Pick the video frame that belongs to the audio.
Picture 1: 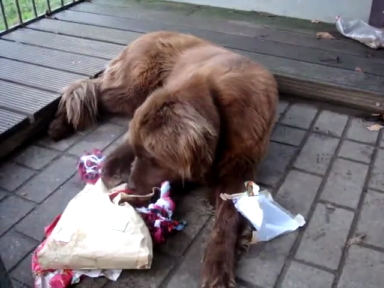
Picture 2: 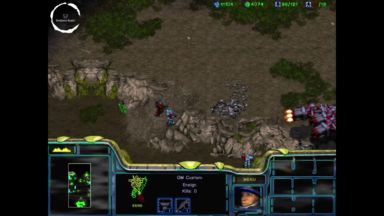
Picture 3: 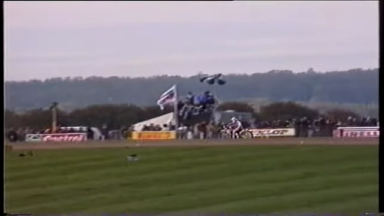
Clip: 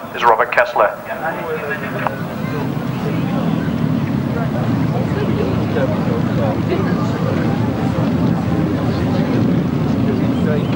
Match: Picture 3